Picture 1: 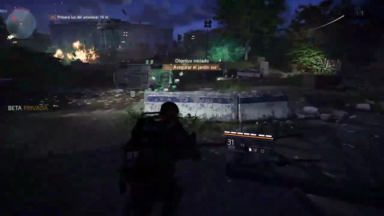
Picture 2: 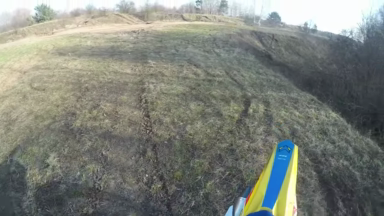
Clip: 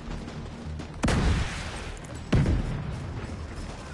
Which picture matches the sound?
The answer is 1